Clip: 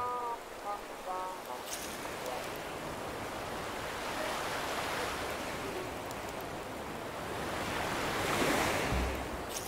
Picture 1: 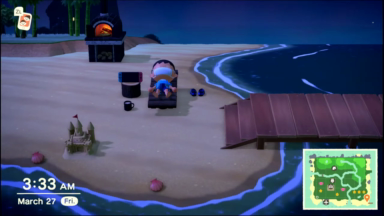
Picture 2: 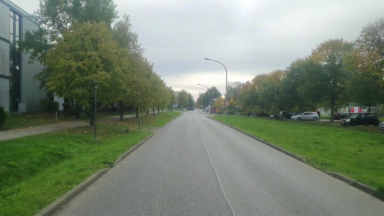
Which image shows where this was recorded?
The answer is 1